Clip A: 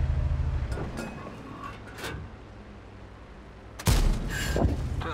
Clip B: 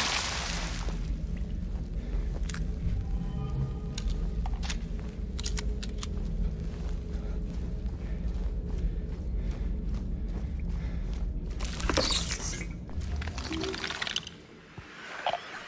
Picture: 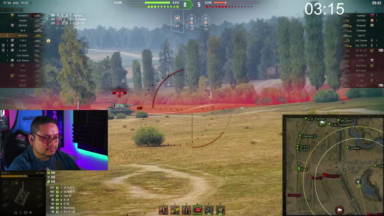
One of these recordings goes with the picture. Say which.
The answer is A